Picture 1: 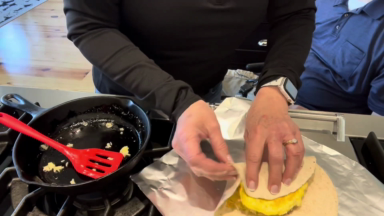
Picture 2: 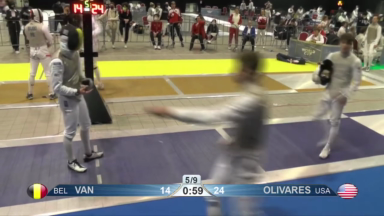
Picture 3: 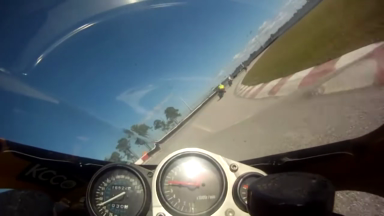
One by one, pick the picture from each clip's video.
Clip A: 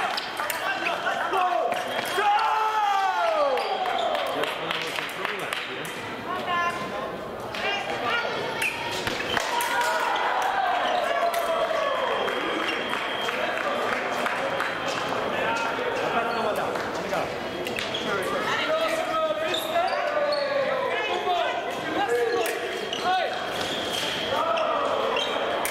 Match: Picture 2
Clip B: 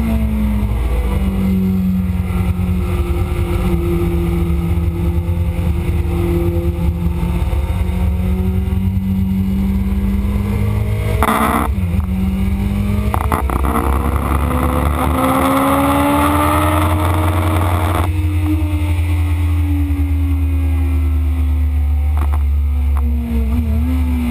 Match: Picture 3